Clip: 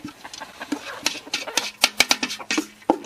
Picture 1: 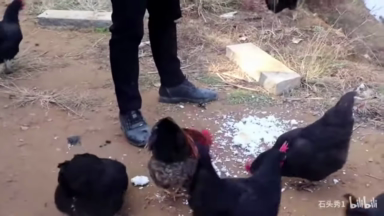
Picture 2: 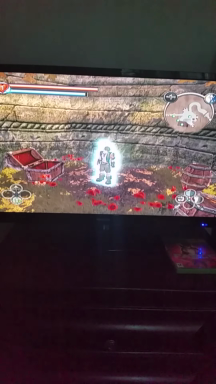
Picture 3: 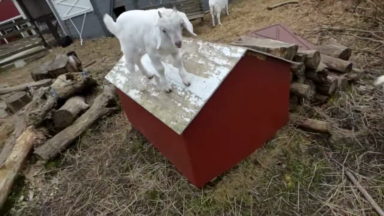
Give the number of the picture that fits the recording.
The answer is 1